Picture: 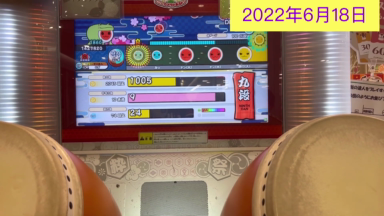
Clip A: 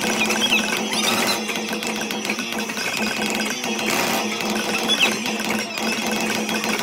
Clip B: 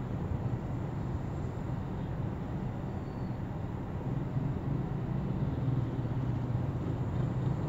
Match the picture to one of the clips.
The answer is A